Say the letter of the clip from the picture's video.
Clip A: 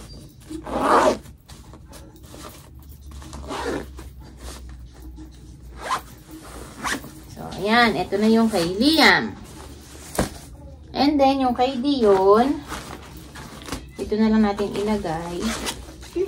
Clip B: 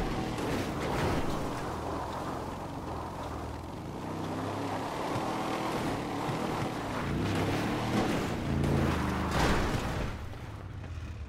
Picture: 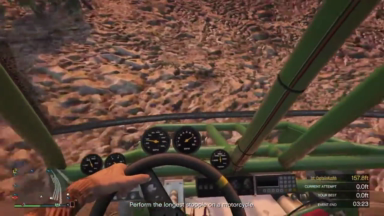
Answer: B